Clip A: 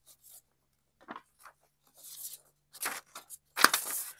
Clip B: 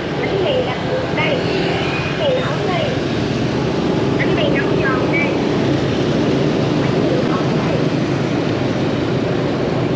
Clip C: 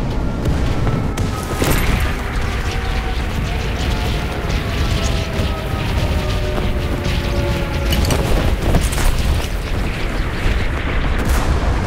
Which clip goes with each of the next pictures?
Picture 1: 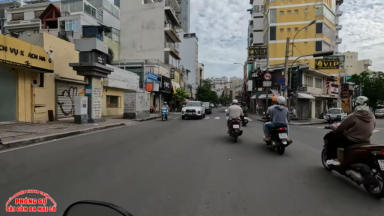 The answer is B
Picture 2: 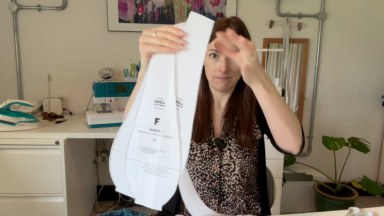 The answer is A